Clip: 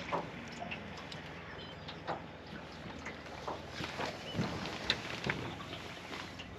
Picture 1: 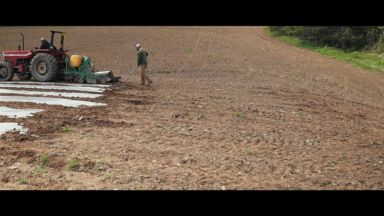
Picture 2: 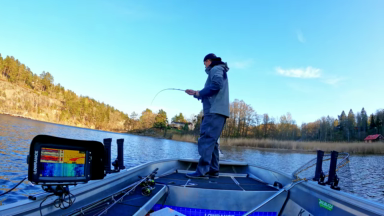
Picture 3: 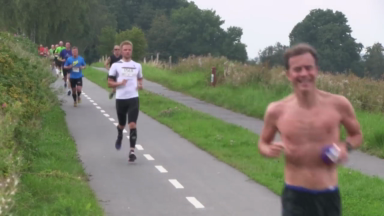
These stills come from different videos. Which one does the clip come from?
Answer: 2